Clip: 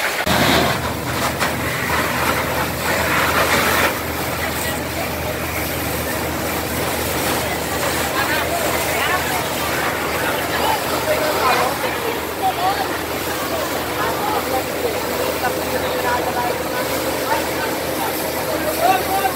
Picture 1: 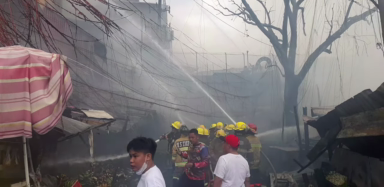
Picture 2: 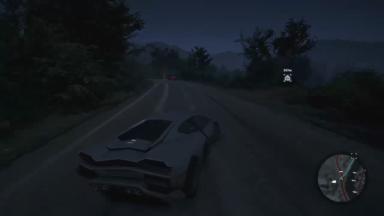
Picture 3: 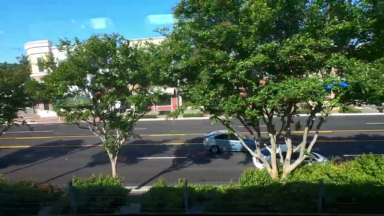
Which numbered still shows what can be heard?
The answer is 1